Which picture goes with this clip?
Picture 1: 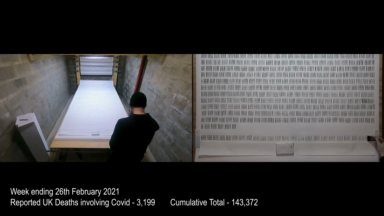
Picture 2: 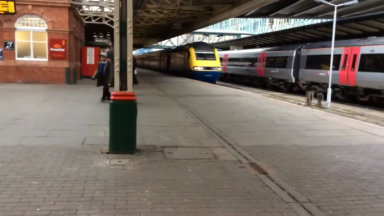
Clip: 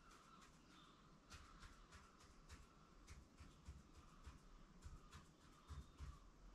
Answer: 1